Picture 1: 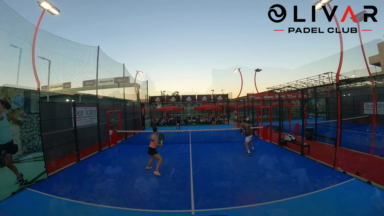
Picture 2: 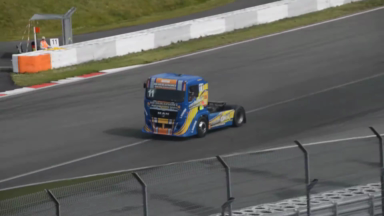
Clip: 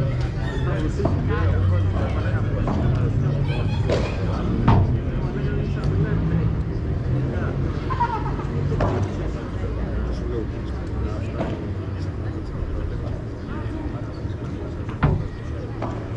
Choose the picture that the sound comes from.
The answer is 1